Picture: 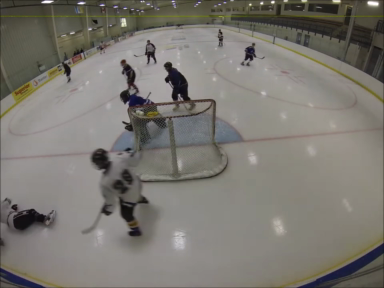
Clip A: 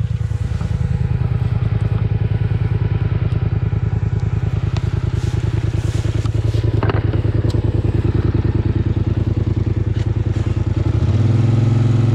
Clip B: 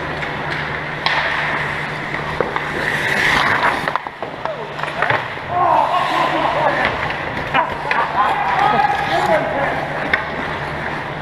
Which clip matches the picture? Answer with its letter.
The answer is B